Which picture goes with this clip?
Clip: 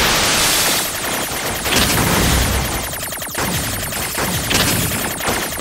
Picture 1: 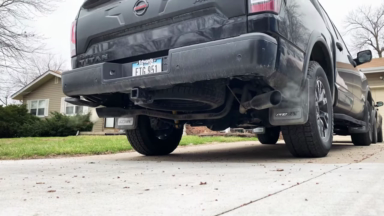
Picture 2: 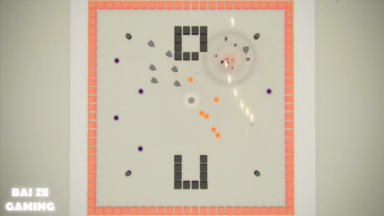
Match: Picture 2